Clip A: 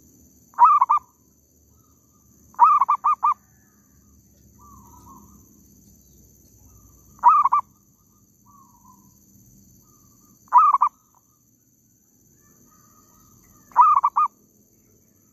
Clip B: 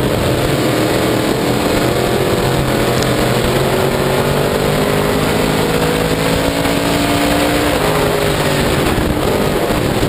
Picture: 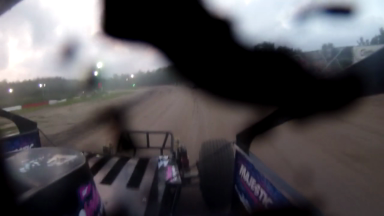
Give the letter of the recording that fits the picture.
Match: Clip B